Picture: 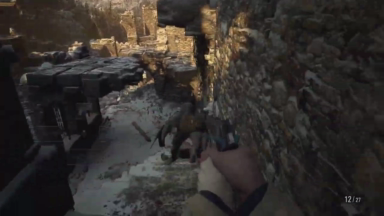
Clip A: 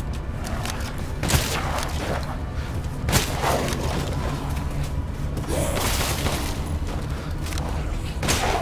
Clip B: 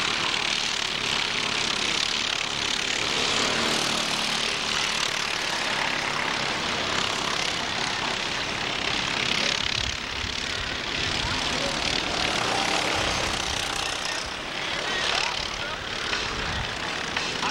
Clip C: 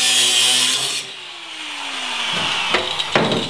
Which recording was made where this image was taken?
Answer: A